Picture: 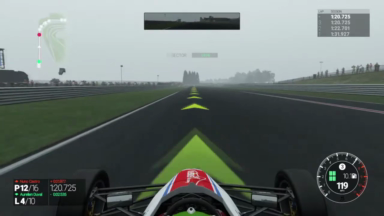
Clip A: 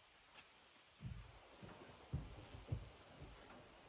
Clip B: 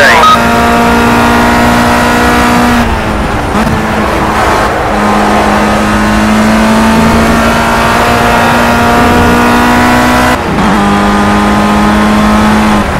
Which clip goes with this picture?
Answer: B